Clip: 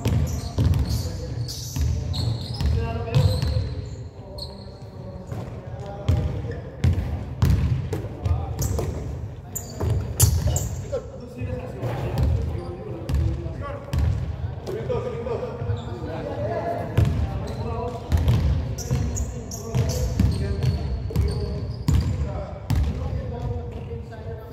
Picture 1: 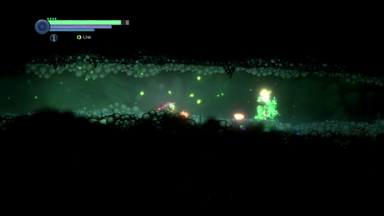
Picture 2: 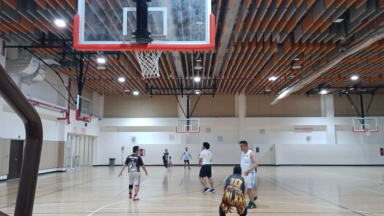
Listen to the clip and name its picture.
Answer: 2